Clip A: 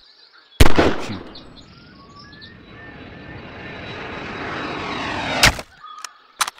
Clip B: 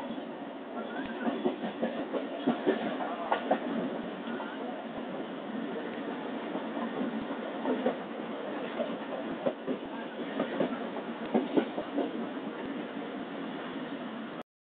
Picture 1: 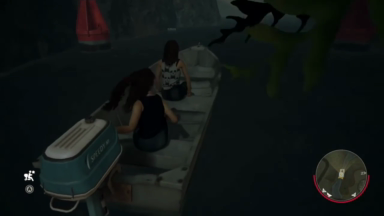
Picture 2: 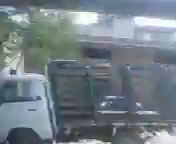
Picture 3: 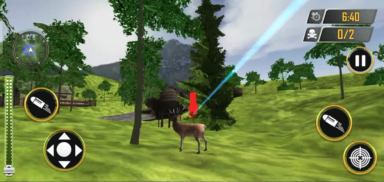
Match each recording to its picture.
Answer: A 3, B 2